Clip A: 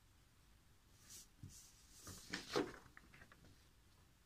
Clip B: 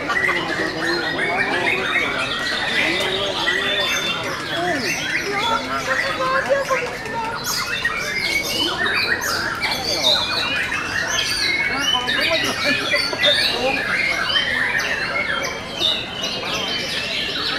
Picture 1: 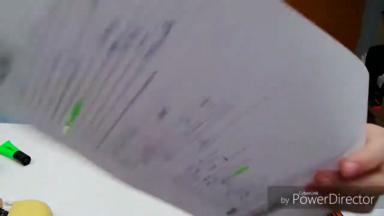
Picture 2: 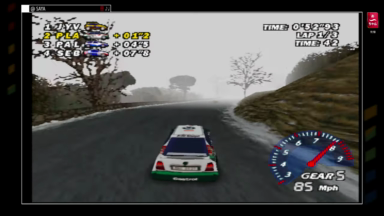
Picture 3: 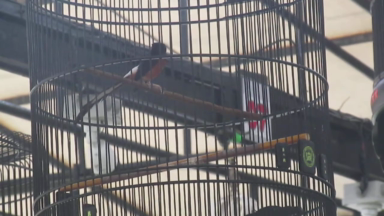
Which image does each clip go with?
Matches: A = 1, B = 3